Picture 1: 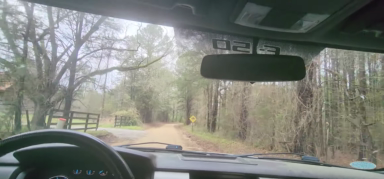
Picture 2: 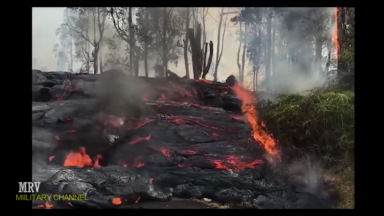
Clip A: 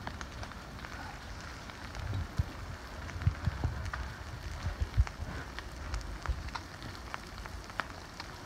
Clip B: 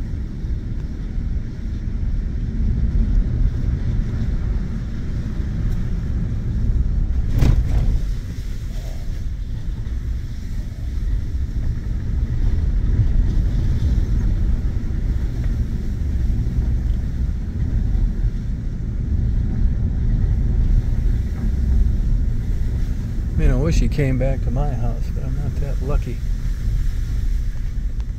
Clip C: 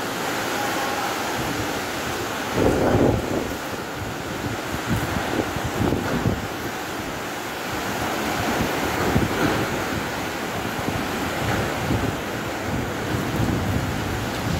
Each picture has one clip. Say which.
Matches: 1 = B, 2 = A